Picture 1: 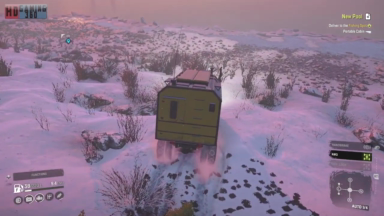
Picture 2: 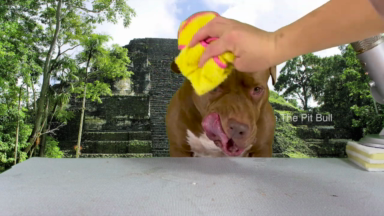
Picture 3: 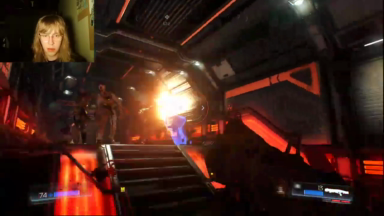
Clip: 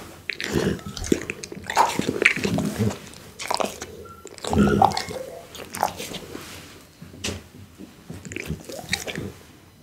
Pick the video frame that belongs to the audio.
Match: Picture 2